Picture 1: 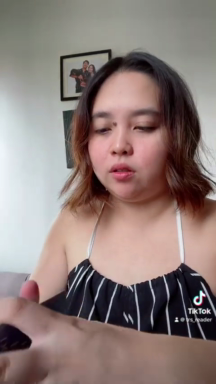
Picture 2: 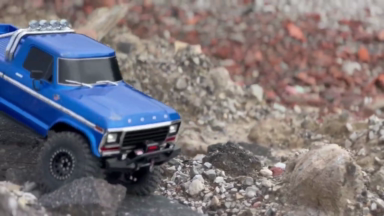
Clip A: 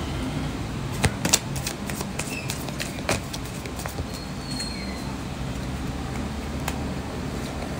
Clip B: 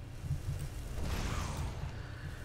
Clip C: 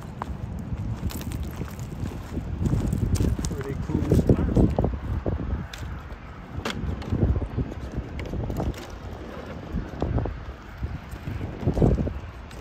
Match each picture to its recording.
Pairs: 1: A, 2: C